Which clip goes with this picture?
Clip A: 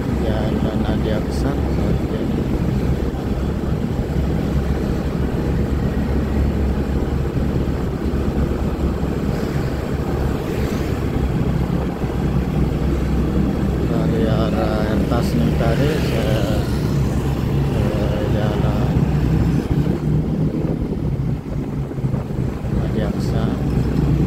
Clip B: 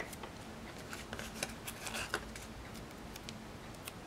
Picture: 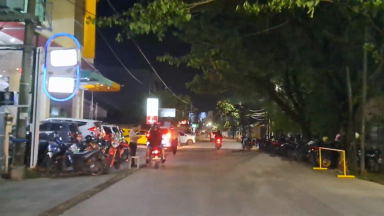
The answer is A